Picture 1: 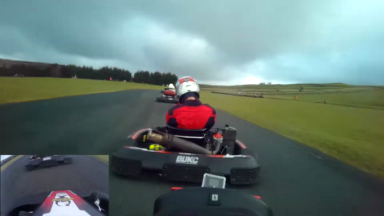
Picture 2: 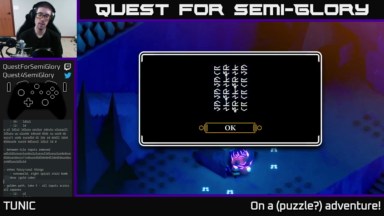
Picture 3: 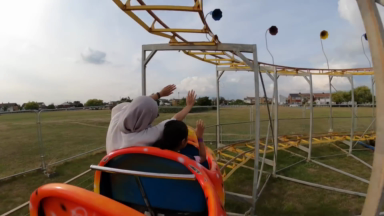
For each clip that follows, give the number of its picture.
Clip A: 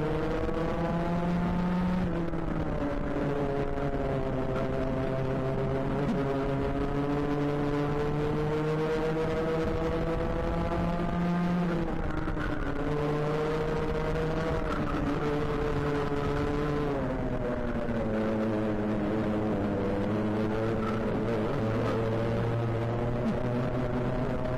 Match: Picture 1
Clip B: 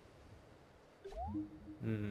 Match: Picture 2